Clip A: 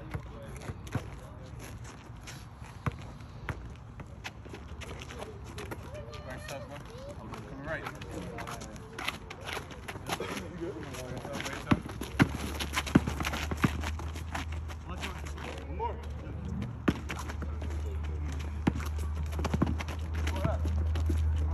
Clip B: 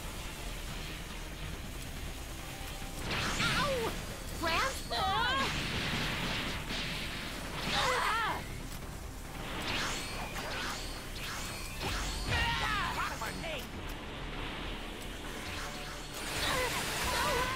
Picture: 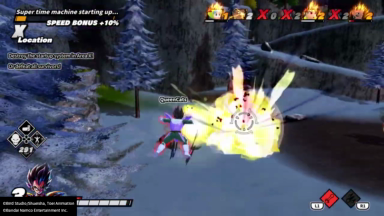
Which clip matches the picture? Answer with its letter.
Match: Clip B